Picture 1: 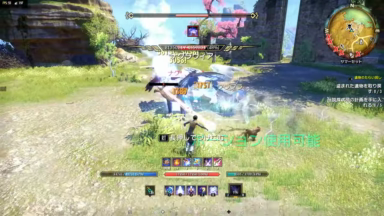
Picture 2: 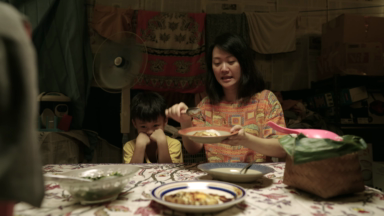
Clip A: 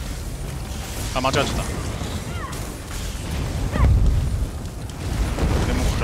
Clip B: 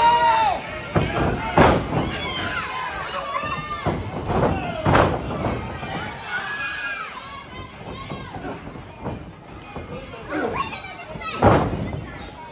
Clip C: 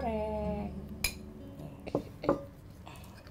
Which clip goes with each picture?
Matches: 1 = A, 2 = C